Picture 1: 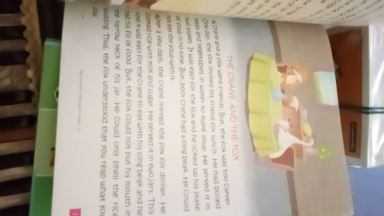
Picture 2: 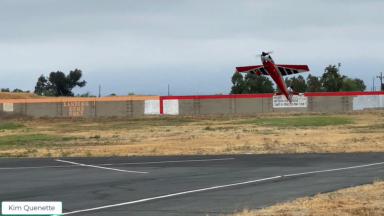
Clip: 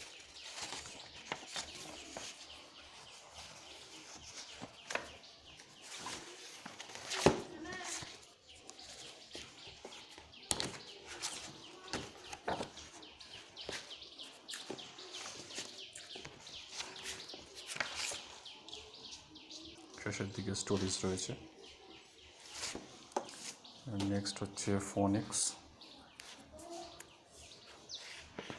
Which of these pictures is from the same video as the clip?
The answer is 1